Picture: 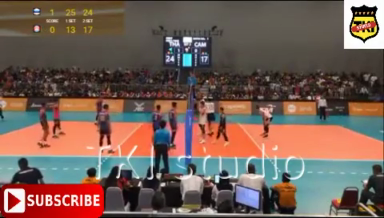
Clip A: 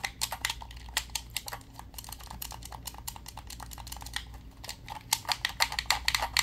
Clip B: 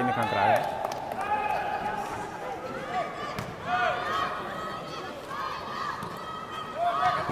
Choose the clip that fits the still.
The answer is B